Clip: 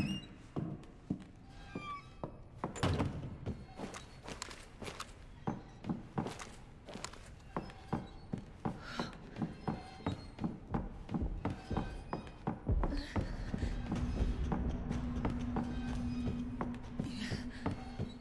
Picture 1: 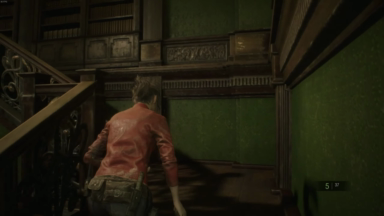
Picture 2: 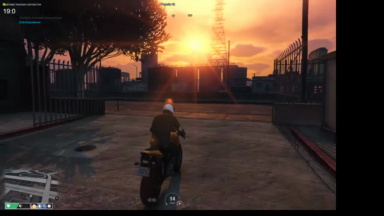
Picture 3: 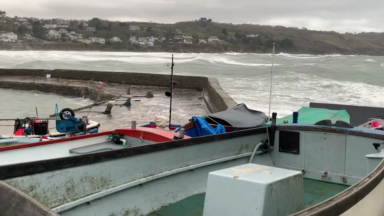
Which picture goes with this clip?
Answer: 1